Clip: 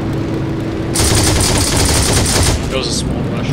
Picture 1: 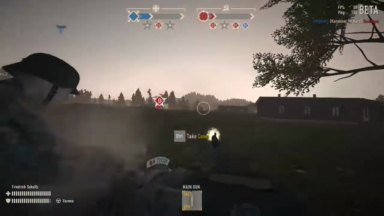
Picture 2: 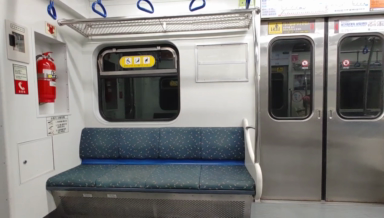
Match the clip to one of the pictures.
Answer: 1